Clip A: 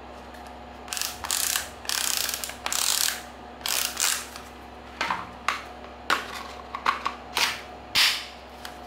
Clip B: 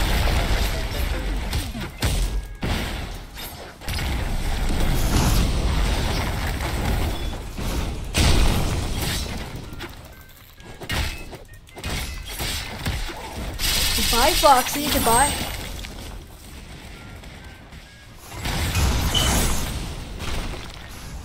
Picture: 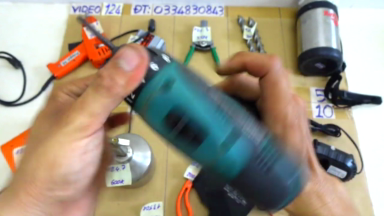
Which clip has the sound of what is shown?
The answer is A